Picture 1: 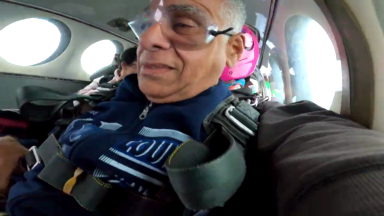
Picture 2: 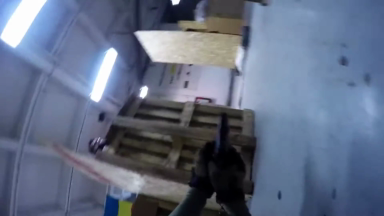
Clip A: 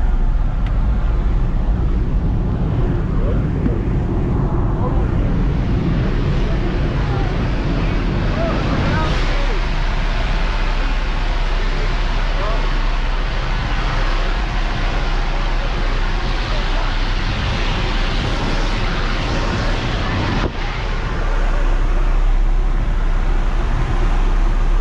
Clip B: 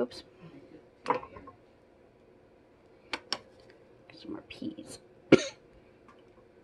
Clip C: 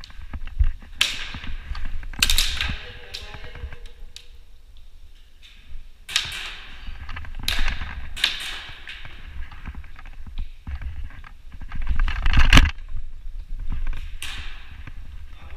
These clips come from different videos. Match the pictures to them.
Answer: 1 A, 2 C